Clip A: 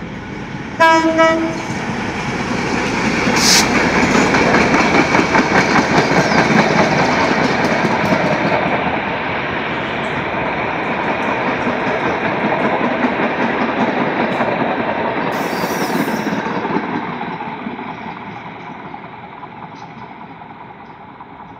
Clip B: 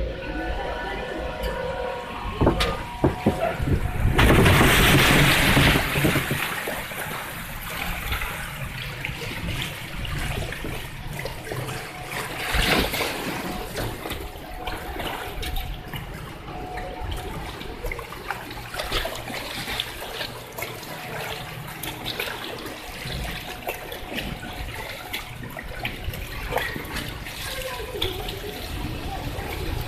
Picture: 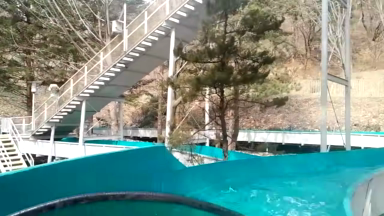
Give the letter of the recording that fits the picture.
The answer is B